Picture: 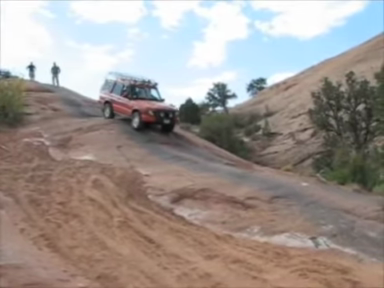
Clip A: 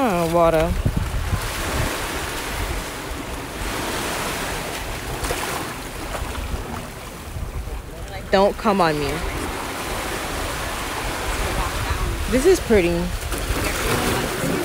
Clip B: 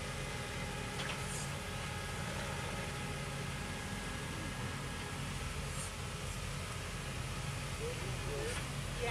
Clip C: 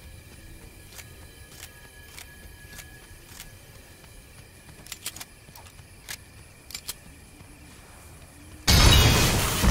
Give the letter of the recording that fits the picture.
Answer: B